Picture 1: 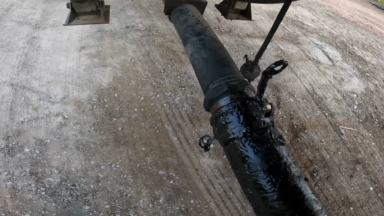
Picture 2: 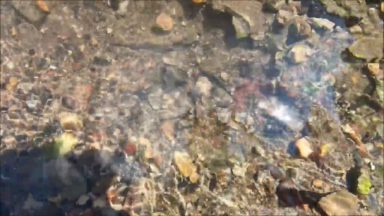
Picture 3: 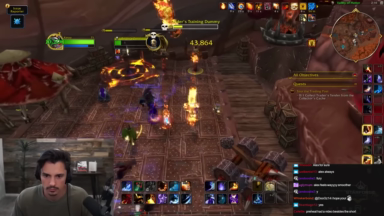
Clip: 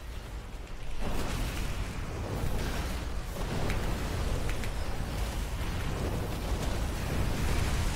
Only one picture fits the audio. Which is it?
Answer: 3